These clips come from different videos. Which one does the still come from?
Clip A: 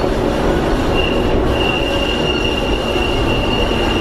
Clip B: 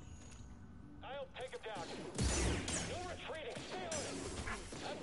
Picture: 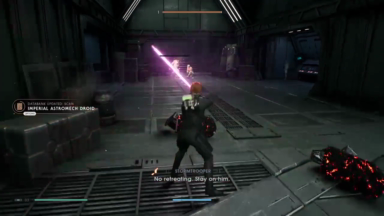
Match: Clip B